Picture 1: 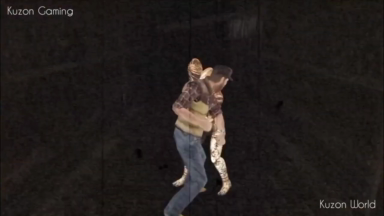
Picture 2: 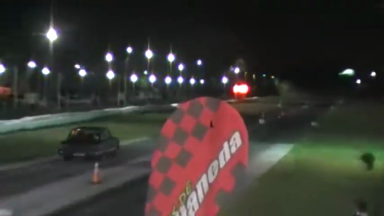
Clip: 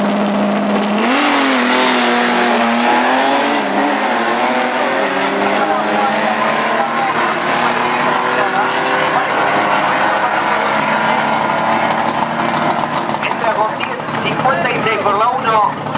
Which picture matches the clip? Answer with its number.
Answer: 2